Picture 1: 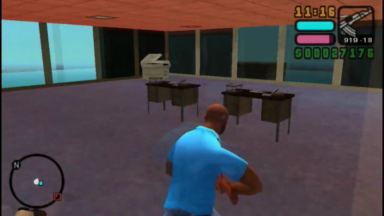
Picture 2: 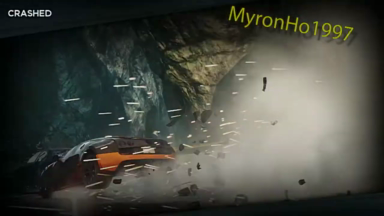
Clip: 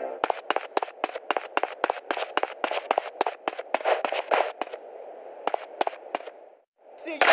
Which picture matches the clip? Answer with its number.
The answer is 1